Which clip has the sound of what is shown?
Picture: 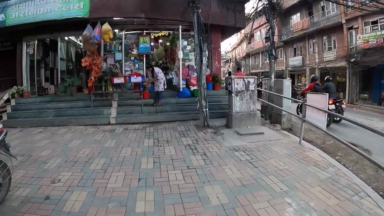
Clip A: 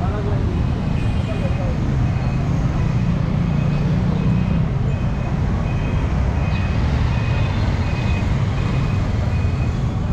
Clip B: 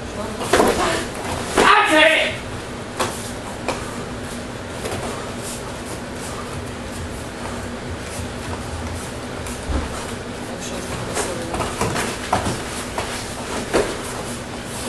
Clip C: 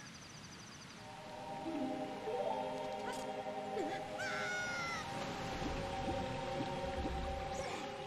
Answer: A